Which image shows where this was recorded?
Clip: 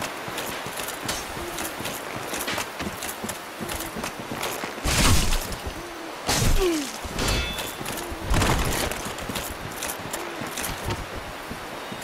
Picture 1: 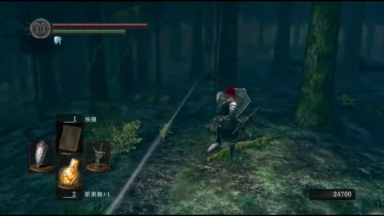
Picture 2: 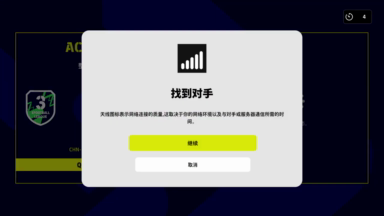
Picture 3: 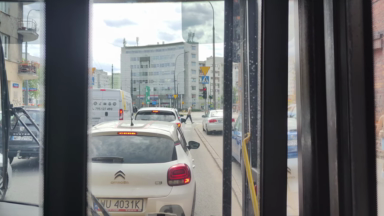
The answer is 1